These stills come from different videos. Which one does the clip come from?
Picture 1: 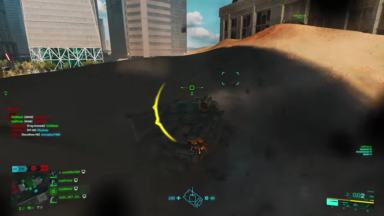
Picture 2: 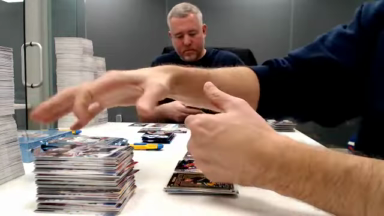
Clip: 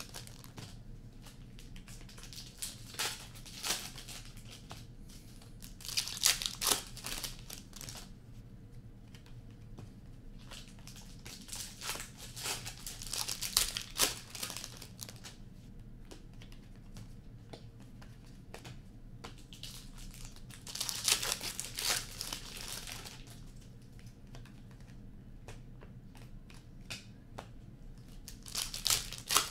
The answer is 2